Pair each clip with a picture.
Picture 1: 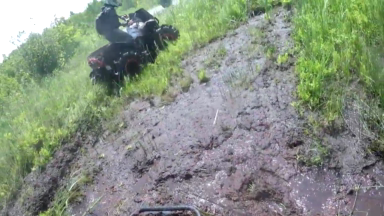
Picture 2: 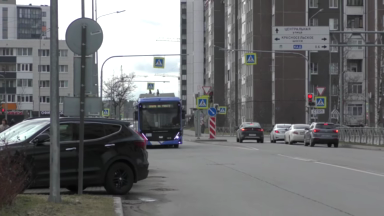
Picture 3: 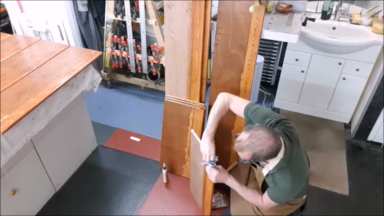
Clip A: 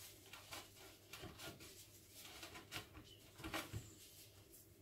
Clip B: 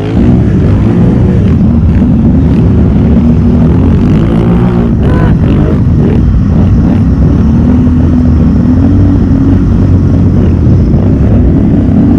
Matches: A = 3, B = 1